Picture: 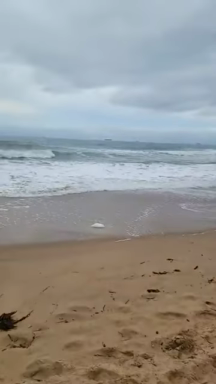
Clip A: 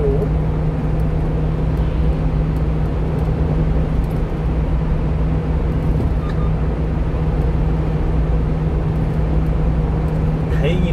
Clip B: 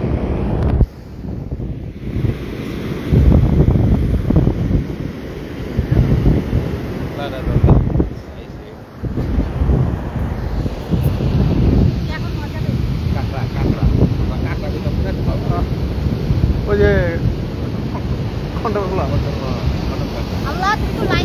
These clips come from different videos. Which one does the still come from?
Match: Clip B